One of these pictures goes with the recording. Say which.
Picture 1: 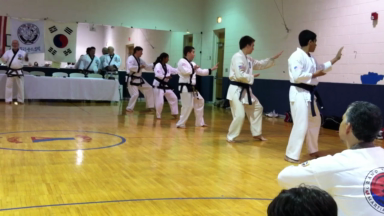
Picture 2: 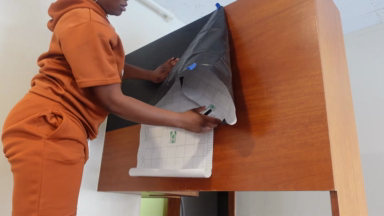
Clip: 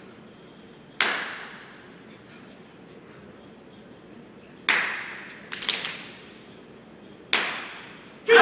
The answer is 1